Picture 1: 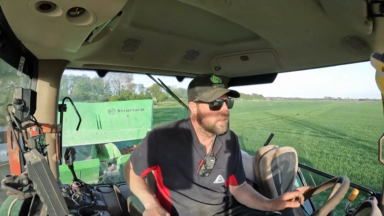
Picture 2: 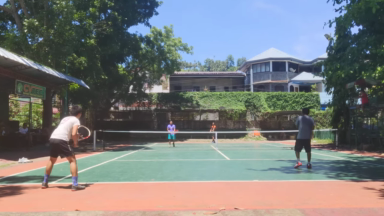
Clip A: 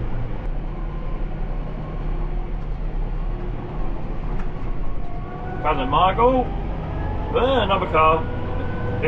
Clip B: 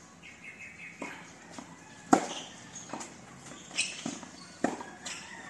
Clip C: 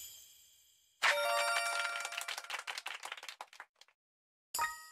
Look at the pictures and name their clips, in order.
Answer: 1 A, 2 B